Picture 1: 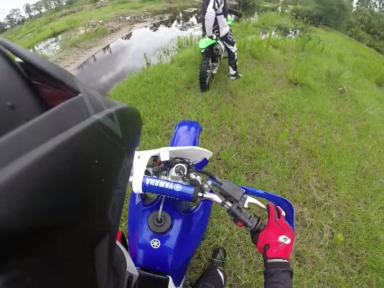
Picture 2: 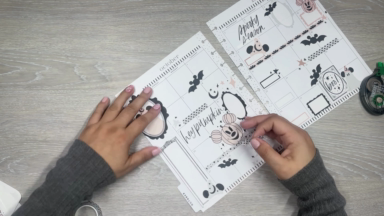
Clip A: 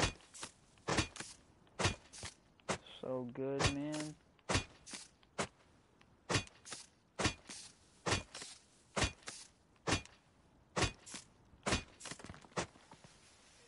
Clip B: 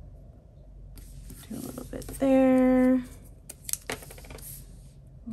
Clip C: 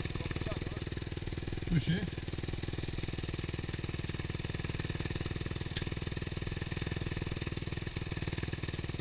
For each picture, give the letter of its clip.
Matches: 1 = C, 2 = B